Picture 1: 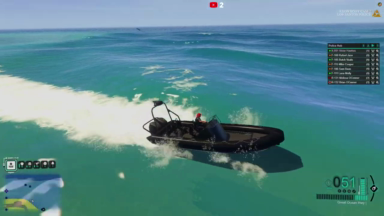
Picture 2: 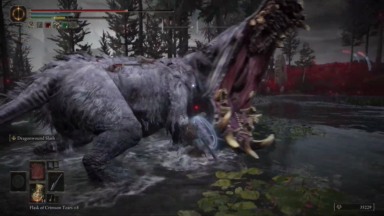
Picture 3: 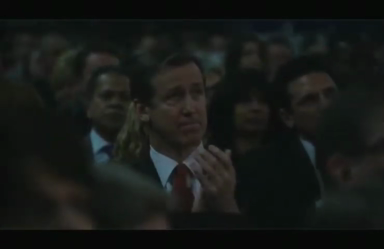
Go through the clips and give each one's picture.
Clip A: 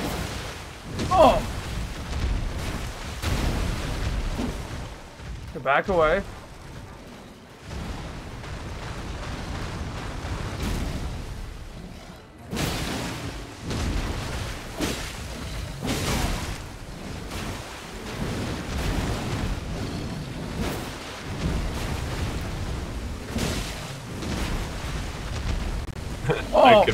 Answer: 2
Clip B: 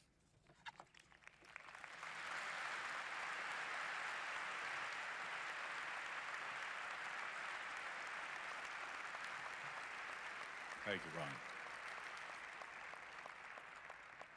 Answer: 3